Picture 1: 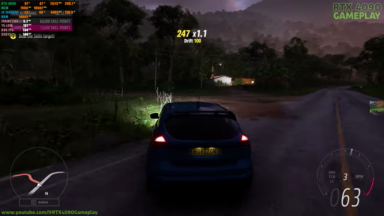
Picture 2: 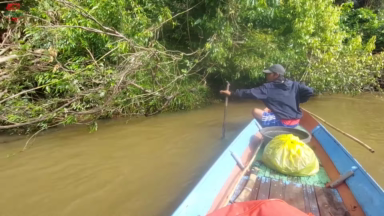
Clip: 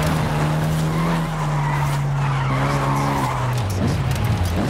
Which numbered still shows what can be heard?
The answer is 1